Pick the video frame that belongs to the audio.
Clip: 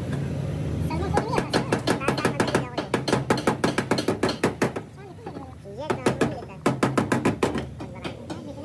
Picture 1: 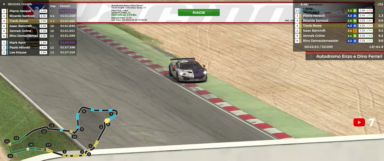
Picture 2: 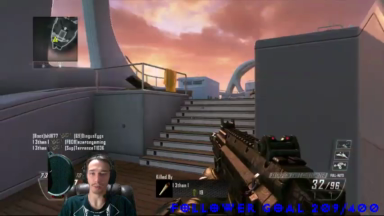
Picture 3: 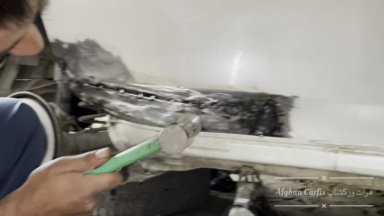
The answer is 3